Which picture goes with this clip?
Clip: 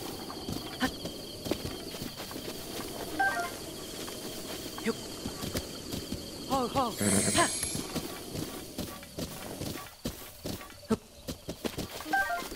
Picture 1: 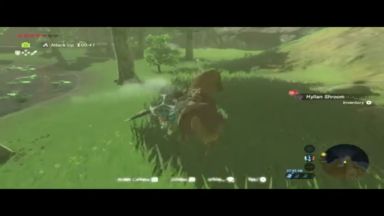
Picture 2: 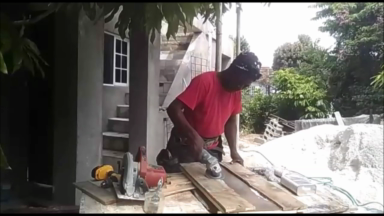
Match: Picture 1